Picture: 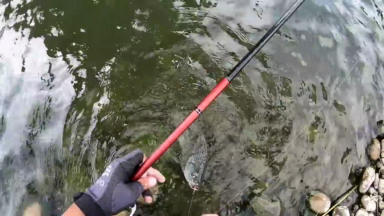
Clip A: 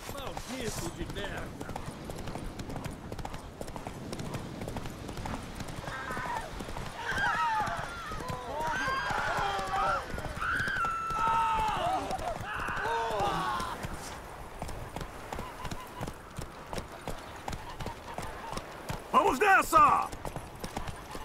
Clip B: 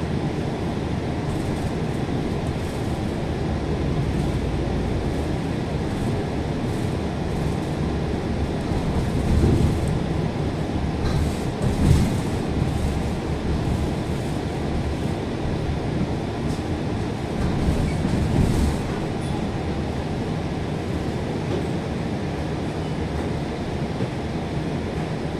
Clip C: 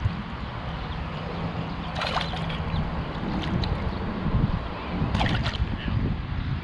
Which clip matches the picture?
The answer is C